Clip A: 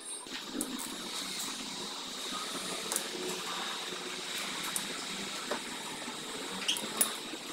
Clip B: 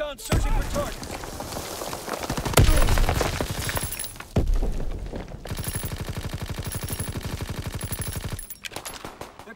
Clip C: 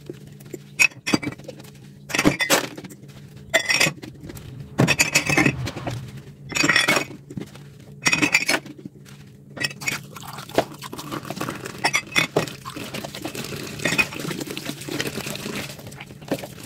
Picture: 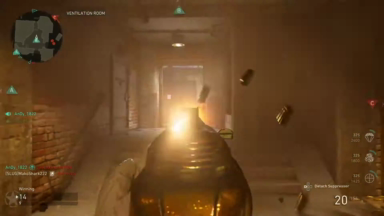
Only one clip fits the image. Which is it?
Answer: B